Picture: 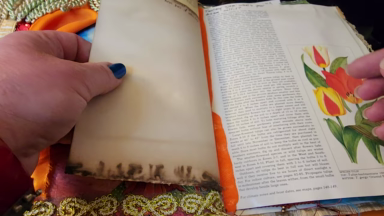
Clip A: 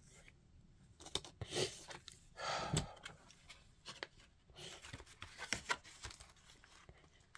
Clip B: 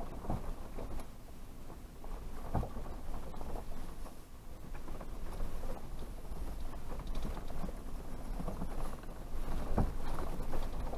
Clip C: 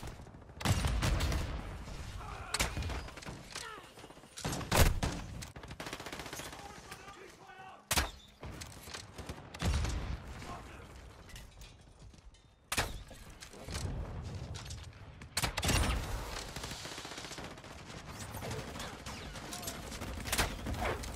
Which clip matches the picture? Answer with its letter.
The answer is A